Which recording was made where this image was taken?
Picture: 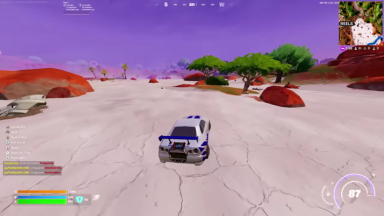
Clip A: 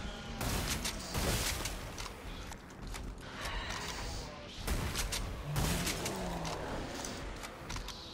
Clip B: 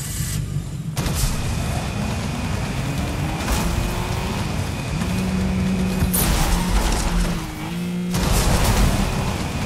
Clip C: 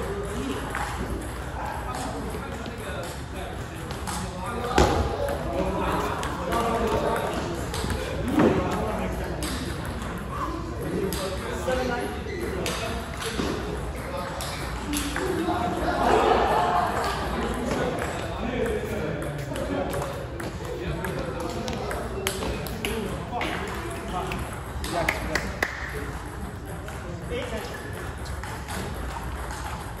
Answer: B